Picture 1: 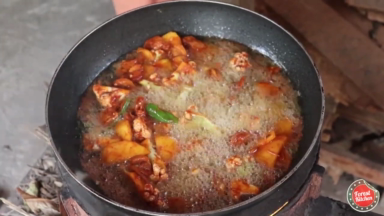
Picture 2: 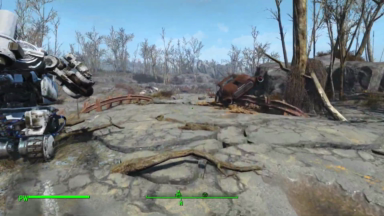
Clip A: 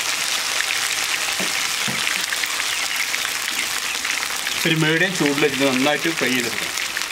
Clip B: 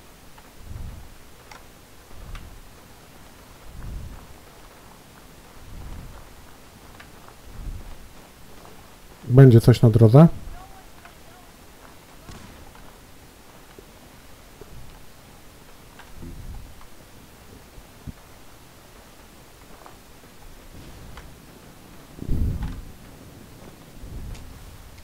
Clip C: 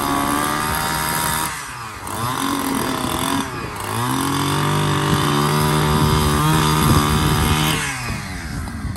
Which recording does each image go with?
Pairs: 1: A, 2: B